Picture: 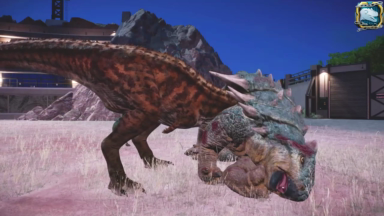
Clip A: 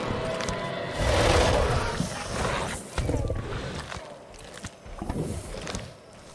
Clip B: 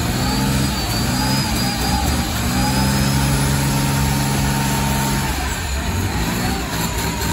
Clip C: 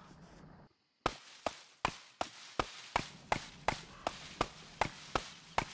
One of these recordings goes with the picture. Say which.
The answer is A